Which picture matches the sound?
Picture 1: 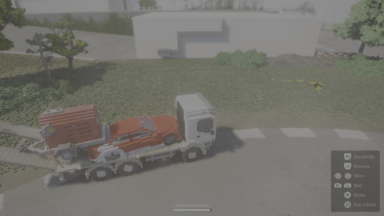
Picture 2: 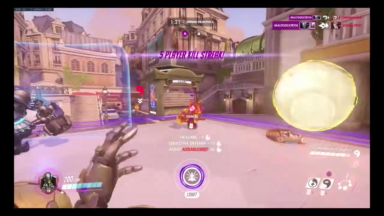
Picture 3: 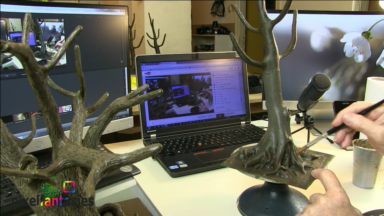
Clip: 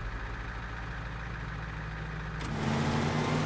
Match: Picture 1